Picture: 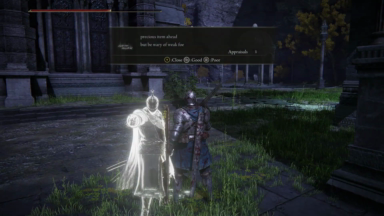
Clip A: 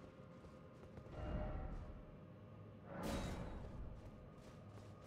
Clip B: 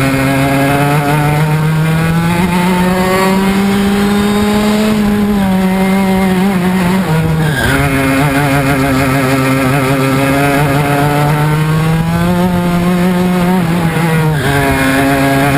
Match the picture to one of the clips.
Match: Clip A